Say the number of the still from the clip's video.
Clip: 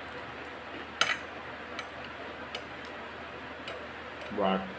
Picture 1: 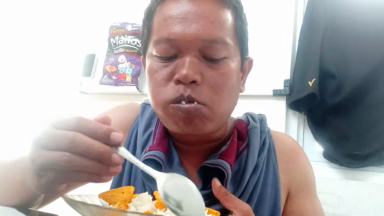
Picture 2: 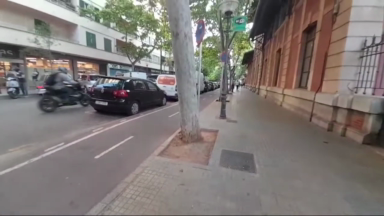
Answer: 1